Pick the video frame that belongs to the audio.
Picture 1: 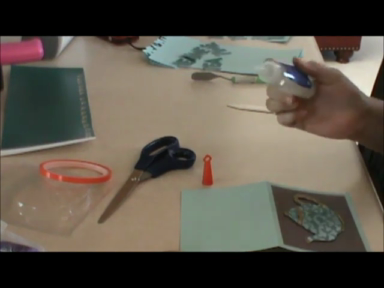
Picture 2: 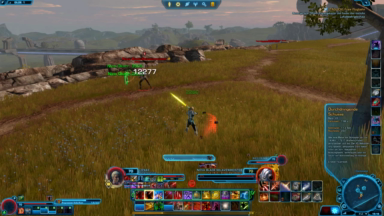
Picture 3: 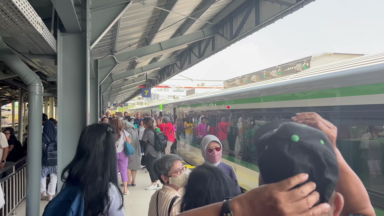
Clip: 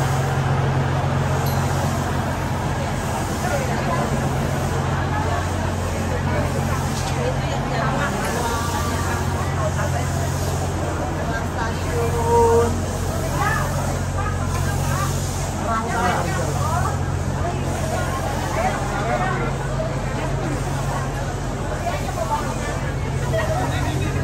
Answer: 3